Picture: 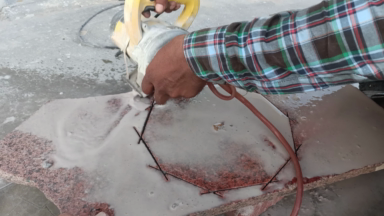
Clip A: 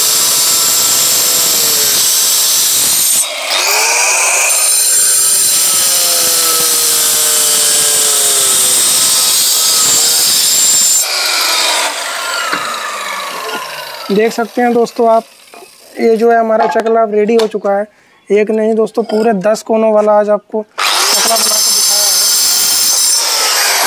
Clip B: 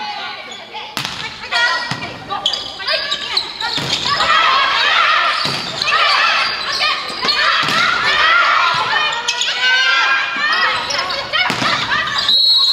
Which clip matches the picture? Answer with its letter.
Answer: A